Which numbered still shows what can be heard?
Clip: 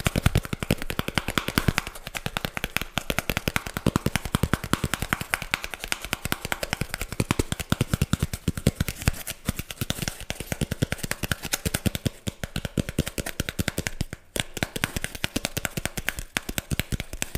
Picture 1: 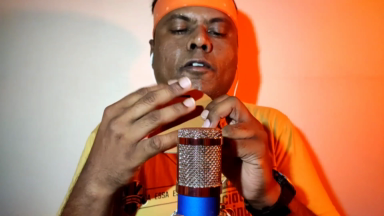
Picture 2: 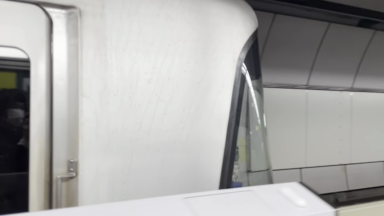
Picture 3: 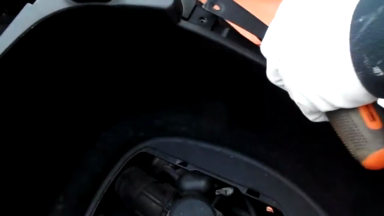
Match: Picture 1